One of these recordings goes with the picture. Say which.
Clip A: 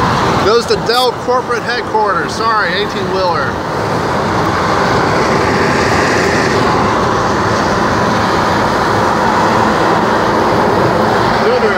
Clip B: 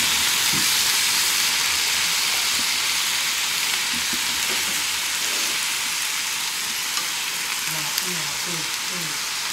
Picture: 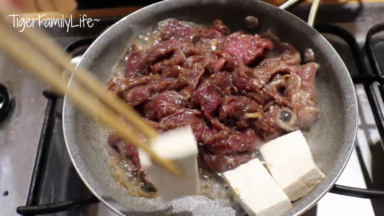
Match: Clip B